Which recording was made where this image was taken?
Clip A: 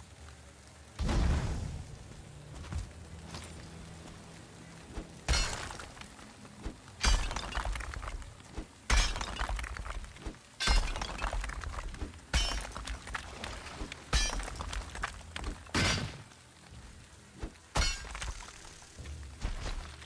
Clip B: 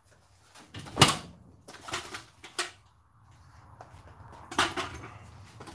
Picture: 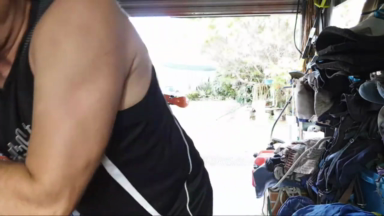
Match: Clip B